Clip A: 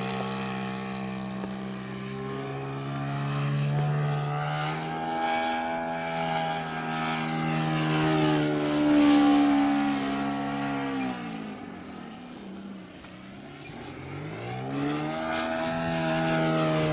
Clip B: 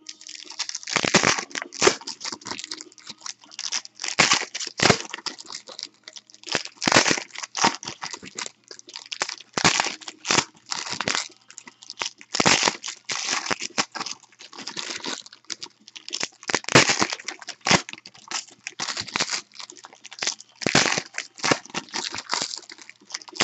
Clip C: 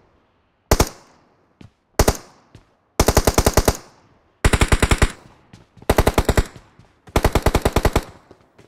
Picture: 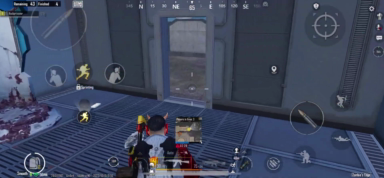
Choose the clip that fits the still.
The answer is C